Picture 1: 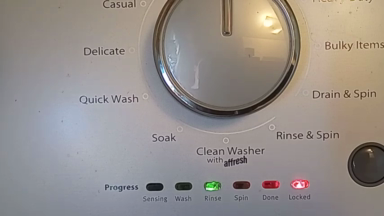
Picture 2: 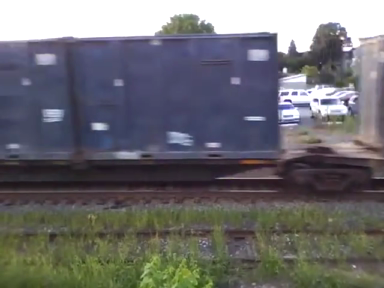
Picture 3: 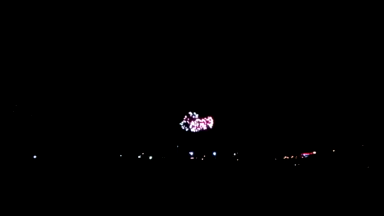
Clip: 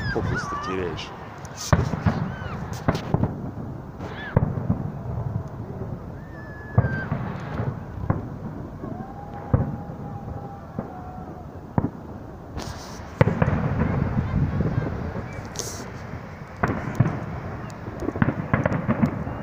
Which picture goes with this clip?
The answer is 3